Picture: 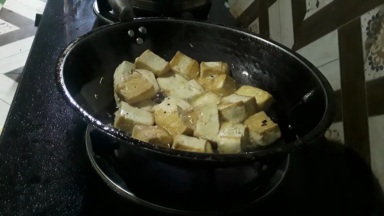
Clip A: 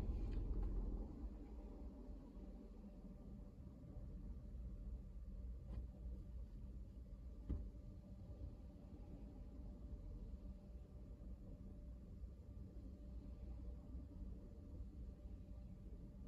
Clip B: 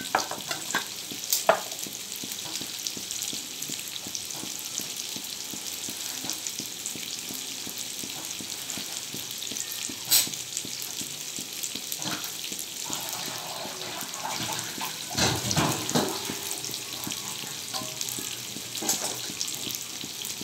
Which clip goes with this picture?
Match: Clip B